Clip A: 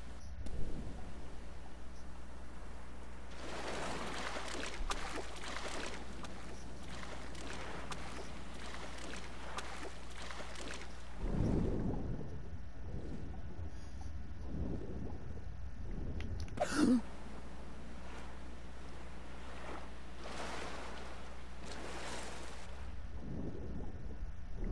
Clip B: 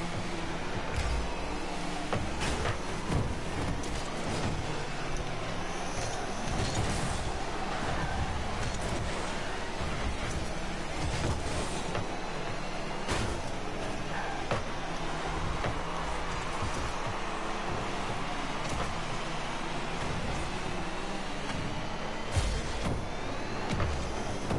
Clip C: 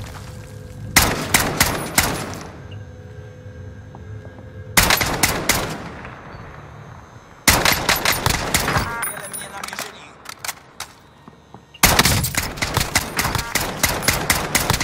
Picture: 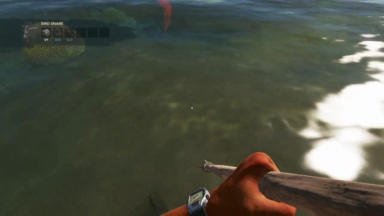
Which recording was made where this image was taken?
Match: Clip A